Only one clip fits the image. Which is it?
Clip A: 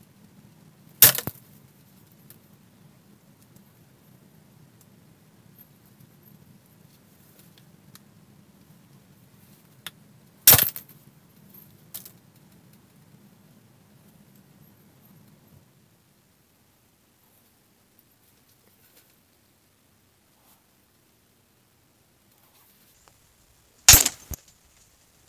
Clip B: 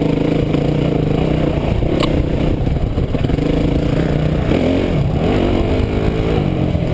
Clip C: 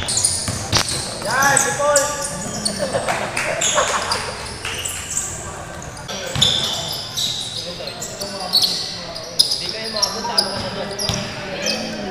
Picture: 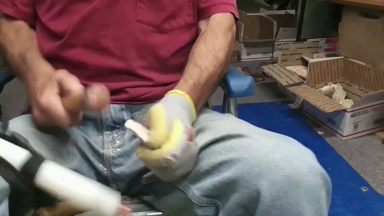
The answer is A